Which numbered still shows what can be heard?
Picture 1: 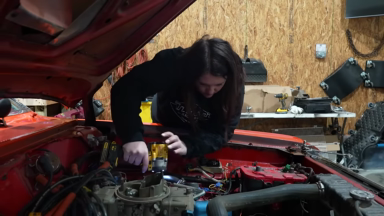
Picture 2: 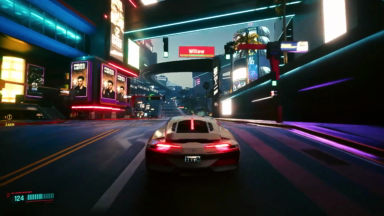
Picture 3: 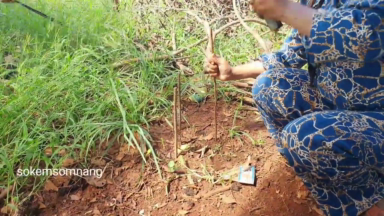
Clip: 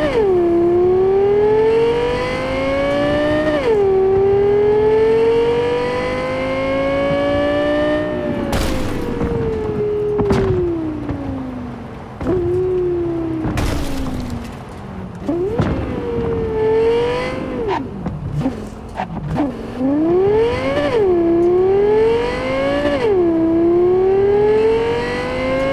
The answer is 2